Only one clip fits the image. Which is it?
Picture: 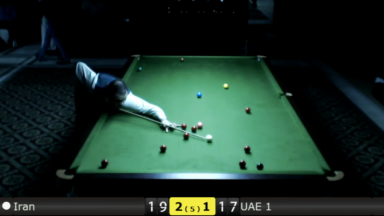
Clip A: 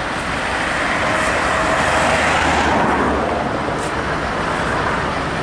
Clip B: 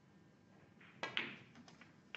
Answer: B